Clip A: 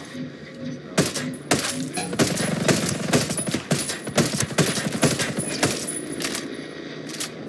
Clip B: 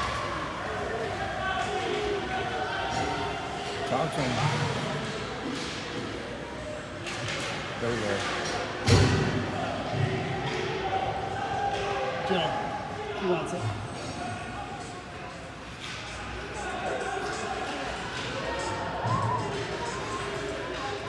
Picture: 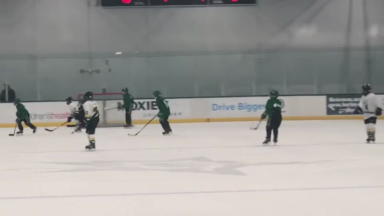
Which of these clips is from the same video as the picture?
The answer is B